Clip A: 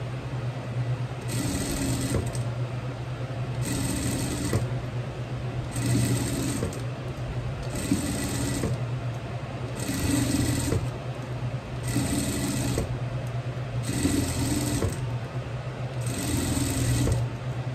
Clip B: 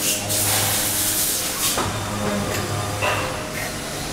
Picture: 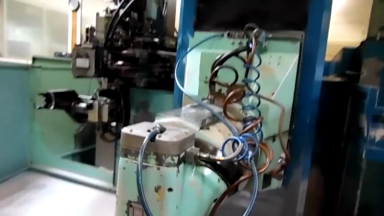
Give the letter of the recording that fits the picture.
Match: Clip B